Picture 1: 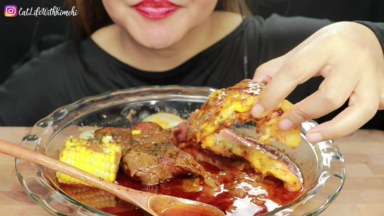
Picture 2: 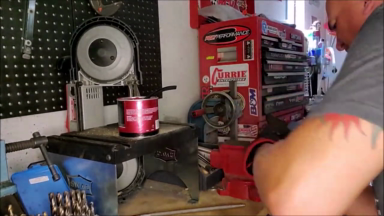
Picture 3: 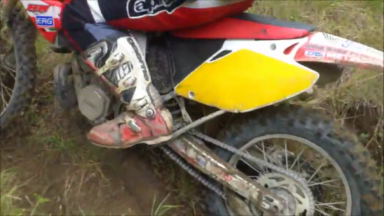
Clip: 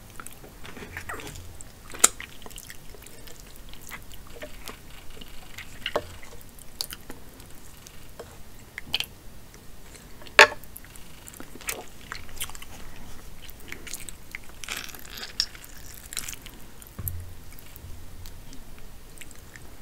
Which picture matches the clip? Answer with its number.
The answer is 1